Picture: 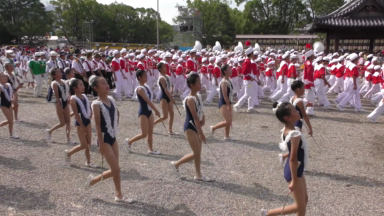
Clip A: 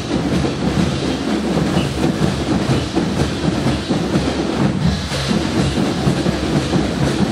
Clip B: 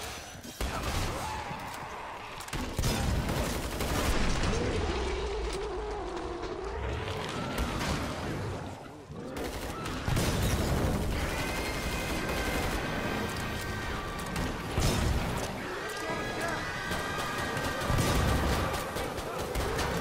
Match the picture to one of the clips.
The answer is A